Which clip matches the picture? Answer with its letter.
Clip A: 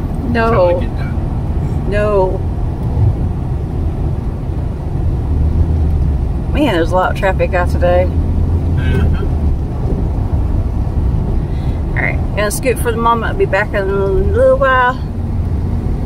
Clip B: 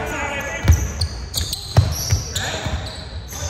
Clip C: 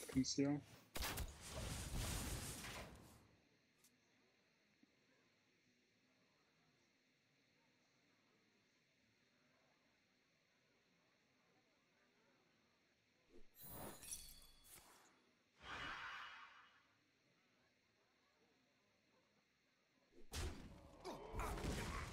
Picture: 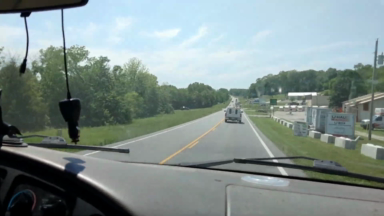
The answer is A